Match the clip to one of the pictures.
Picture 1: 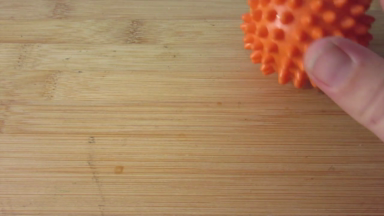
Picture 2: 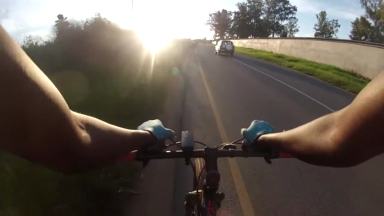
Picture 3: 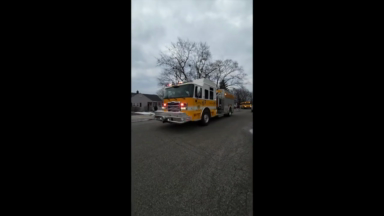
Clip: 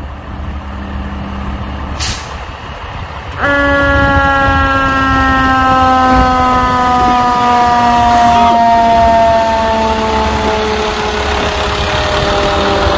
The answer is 3